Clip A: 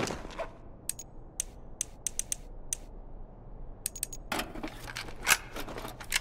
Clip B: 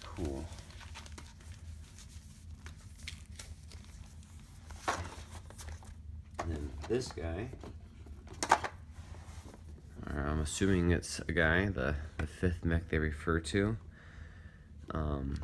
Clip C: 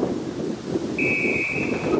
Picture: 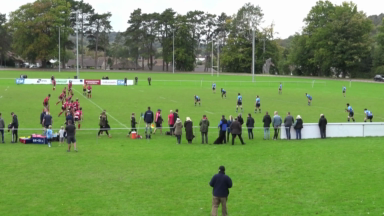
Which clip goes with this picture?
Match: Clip C